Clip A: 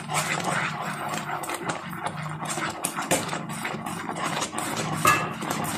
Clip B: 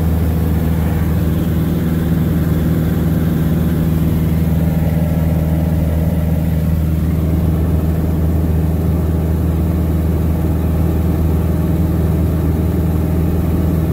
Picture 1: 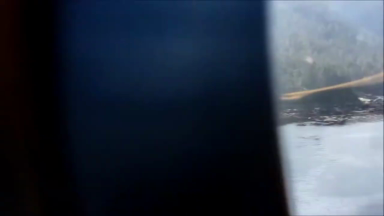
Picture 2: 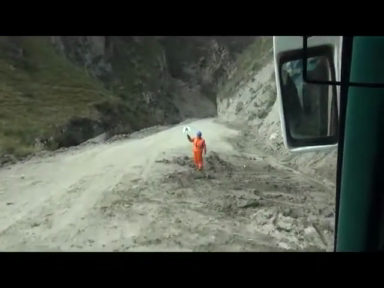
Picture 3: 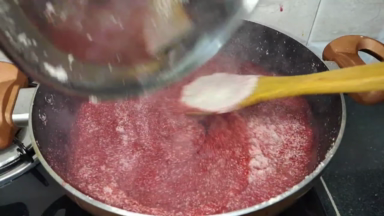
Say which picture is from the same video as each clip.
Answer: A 3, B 1